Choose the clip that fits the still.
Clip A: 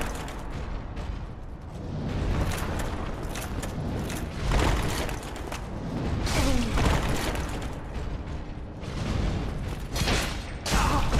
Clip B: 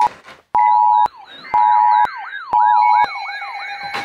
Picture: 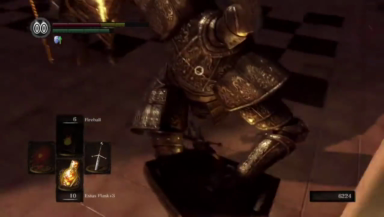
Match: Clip A